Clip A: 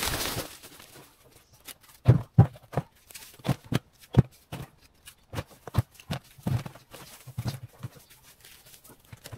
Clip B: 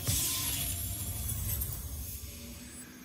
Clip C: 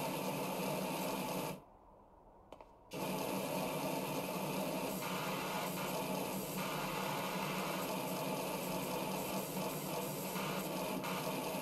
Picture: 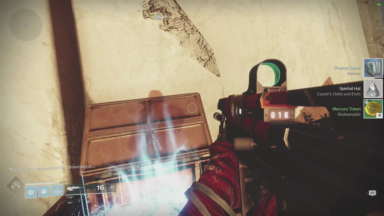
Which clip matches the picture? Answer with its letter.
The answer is B